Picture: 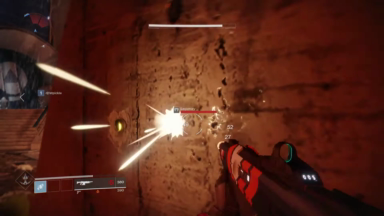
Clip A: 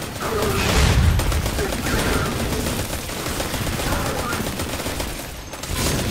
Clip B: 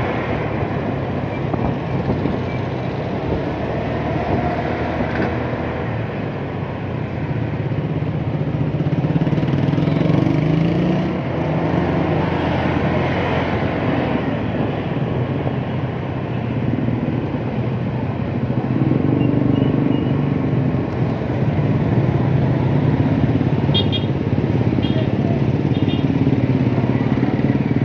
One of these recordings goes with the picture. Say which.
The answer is A